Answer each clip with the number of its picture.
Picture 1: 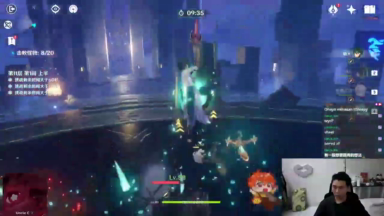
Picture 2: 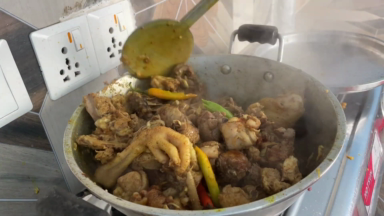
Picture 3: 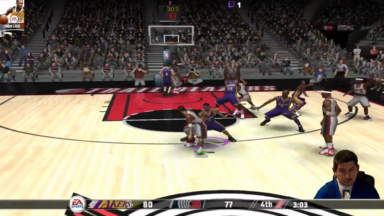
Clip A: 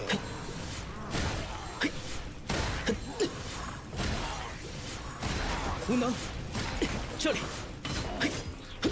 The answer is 1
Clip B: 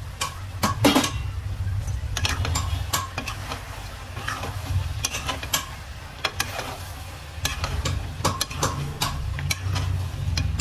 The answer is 2